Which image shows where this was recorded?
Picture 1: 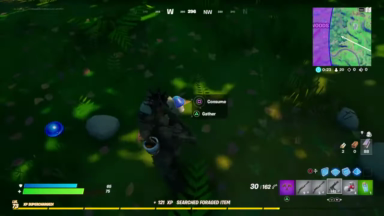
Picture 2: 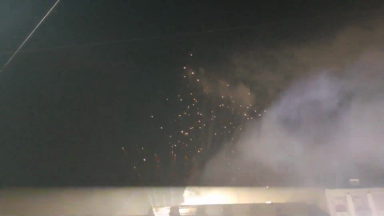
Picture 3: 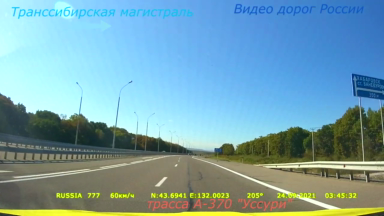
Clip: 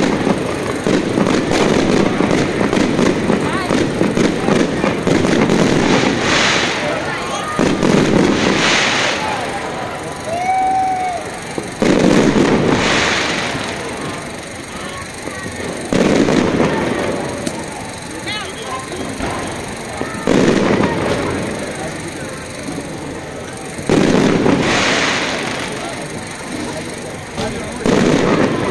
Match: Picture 2